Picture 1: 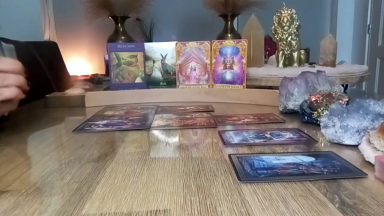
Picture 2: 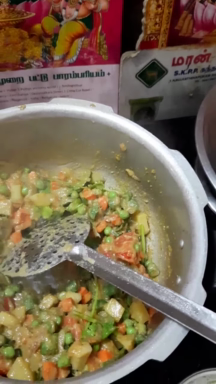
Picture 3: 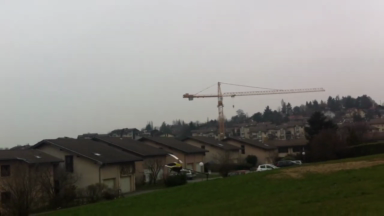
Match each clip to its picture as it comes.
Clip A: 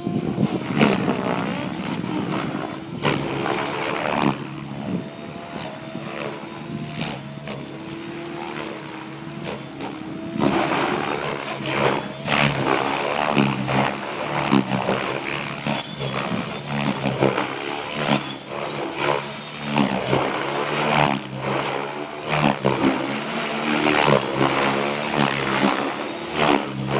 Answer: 3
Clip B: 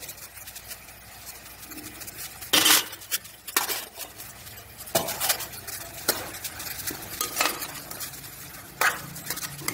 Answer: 2